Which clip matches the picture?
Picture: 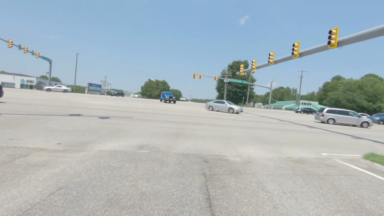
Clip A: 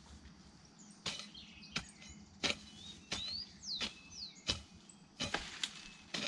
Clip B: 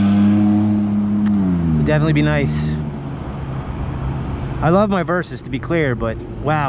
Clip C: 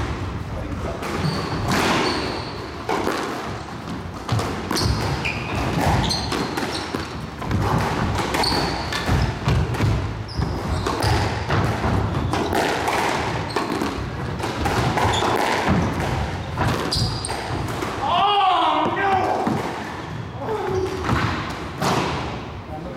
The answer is B